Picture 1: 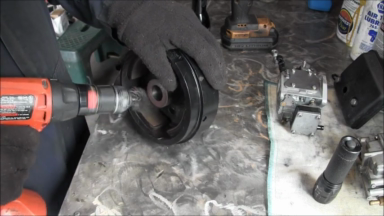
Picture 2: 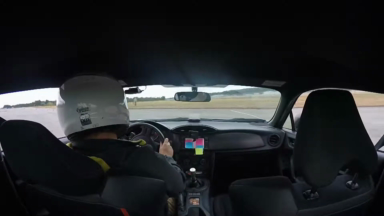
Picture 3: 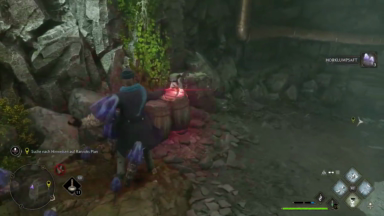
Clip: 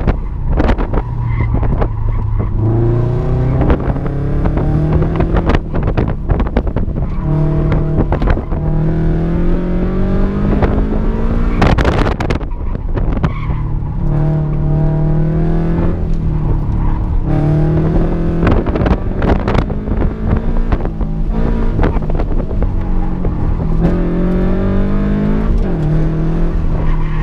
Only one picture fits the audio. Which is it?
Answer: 2